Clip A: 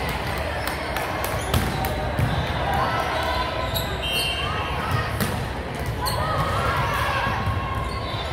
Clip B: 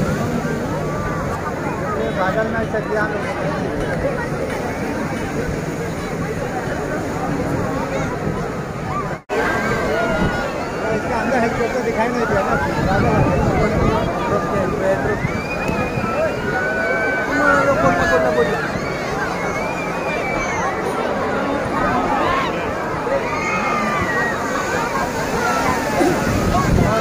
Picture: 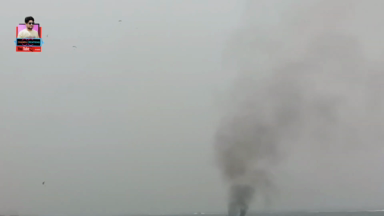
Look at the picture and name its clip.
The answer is B